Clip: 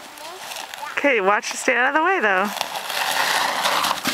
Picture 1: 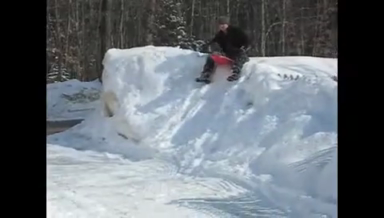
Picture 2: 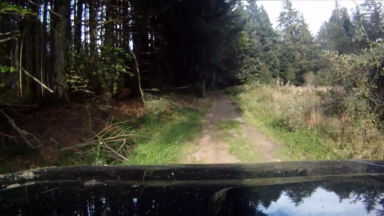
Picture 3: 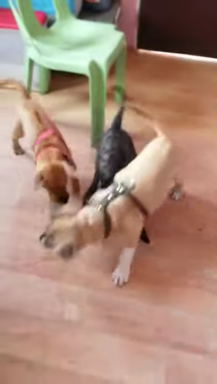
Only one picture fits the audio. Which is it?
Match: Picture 1